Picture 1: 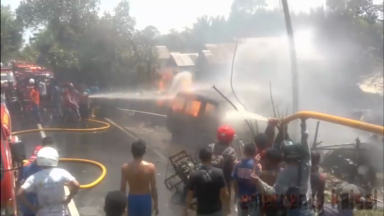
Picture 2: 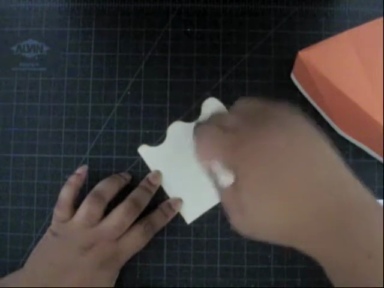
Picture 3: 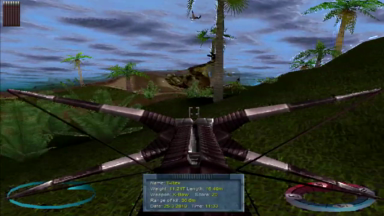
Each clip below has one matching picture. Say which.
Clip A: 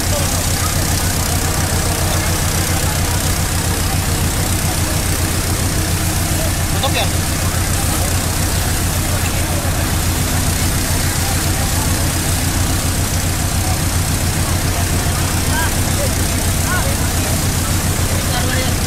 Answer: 1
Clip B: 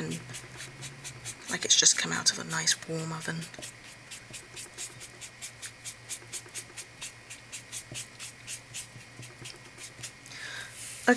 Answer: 2